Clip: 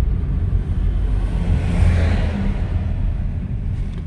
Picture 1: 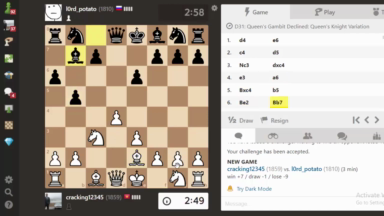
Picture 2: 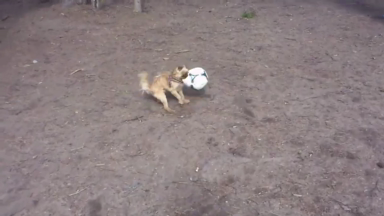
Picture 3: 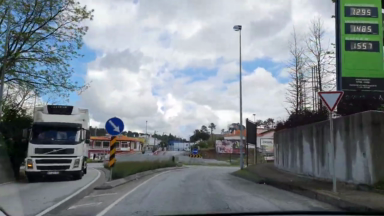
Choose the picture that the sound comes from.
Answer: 3